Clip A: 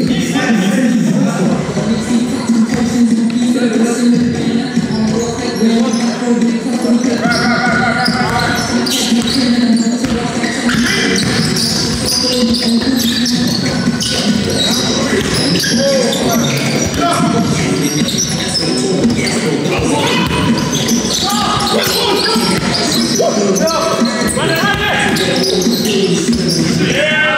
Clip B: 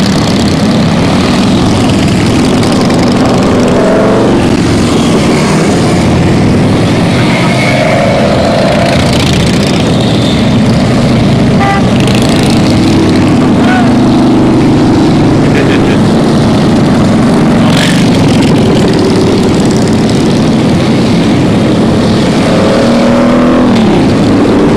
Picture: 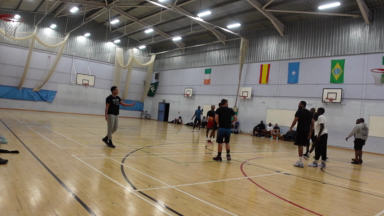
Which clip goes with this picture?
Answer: A